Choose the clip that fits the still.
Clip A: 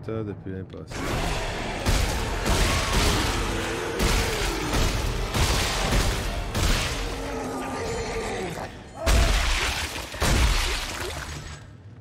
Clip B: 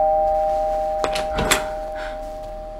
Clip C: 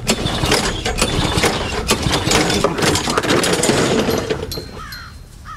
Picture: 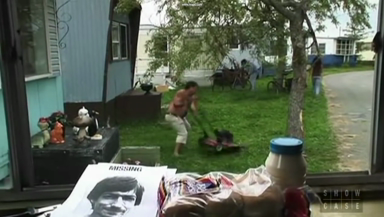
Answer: C